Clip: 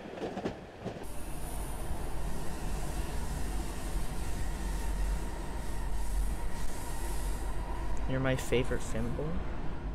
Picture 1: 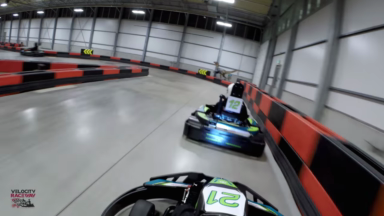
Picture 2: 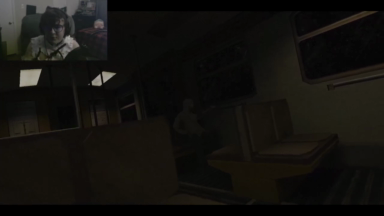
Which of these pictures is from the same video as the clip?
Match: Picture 2